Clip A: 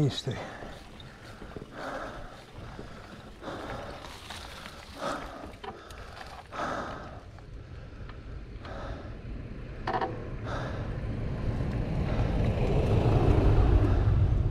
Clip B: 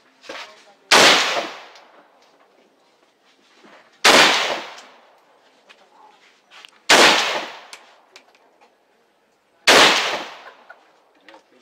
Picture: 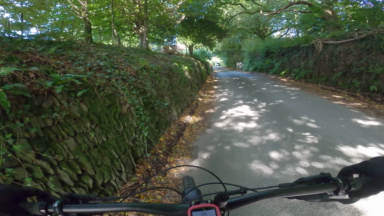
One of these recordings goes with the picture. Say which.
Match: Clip A